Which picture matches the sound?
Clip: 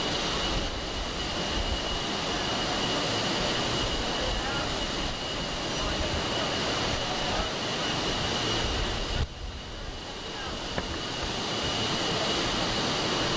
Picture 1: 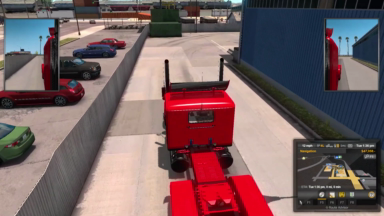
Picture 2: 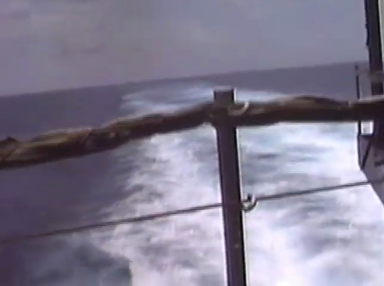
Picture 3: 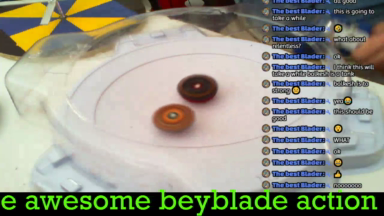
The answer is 2